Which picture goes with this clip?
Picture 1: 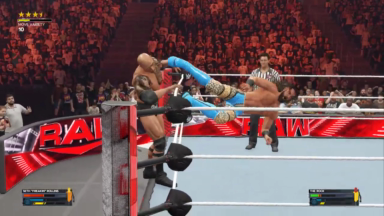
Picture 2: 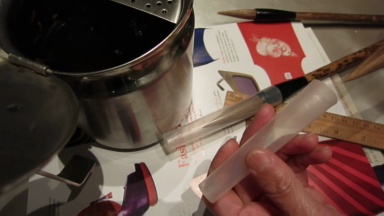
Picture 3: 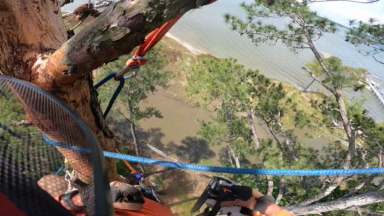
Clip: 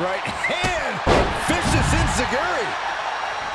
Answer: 1